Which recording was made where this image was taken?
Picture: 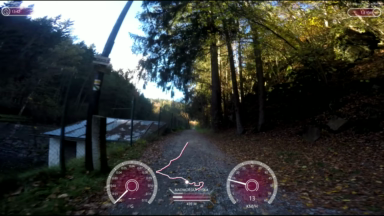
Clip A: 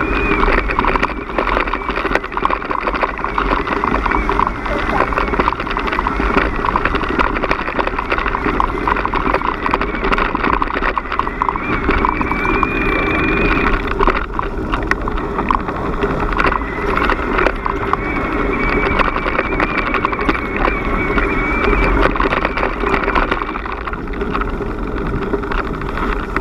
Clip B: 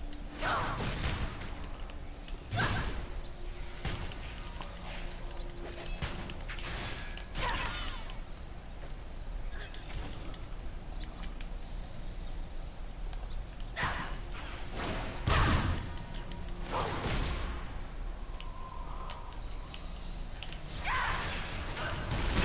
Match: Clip A